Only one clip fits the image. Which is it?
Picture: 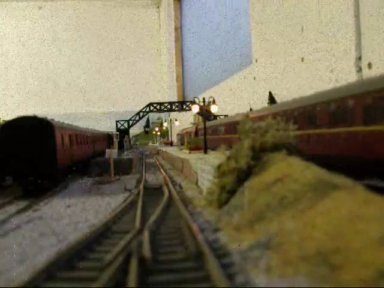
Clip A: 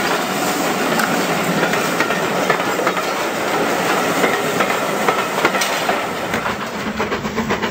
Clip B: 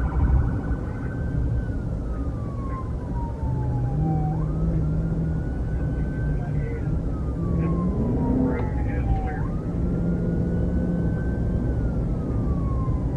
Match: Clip A